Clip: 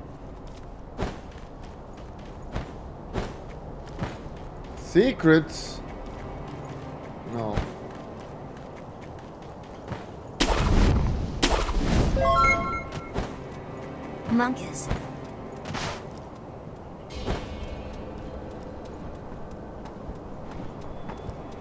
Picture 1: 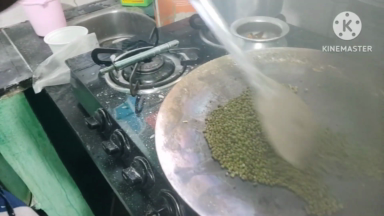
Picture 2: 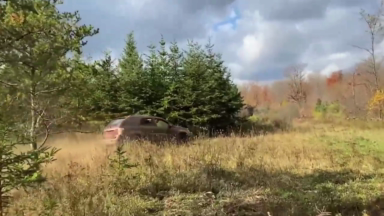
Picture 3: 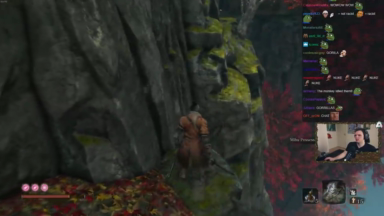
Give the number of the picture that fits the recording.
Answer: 3